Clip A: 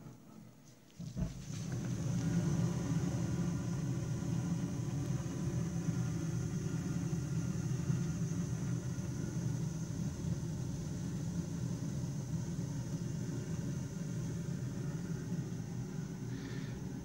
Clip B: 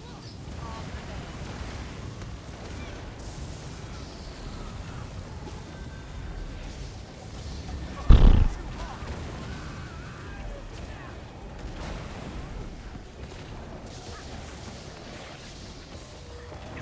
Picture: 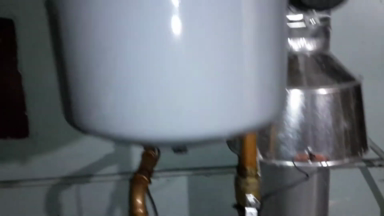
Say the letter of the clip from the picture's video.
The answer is A